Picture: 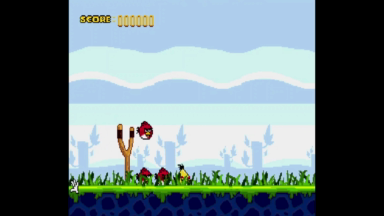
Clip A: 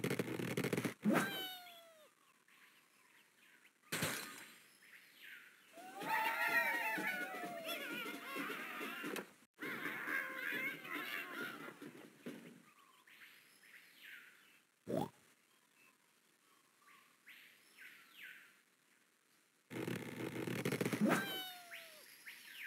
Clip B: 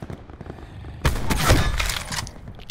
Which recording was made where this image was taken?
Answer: A